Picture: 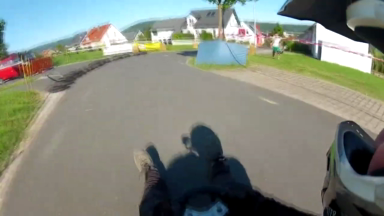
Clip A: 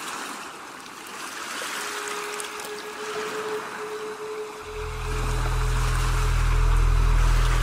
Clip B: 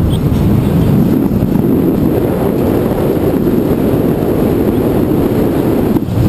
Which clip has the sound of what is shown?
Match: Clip B